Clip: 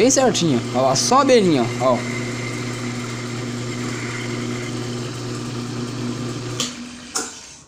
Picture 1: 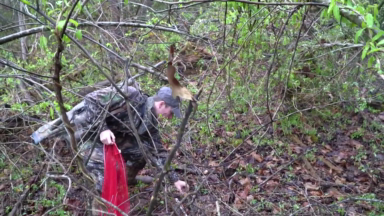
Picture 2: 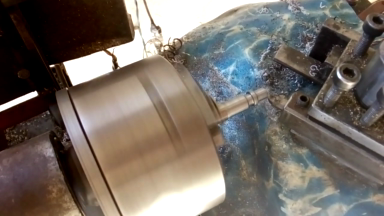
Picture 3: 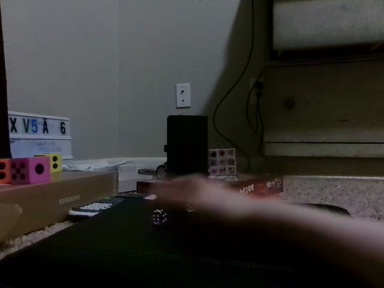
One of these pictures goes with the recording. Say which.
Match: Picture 2